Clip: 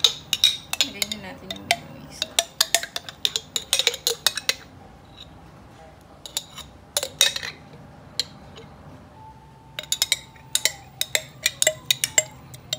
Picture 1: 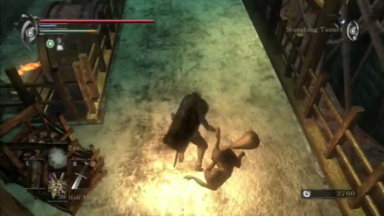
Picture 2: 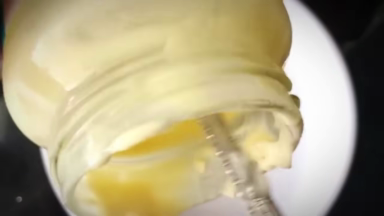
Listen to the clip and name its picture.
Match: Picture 2